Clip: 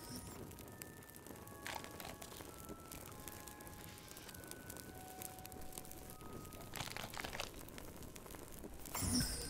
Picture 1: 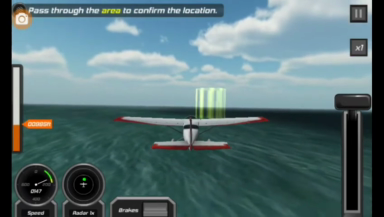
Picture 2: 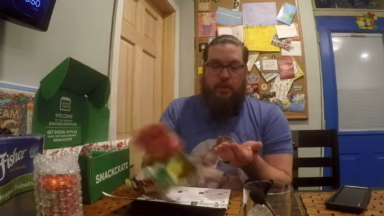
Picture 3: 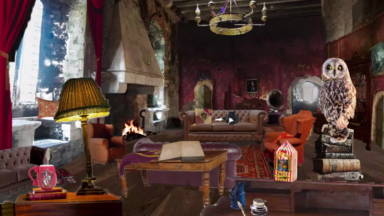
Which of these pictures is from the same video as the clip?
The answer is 3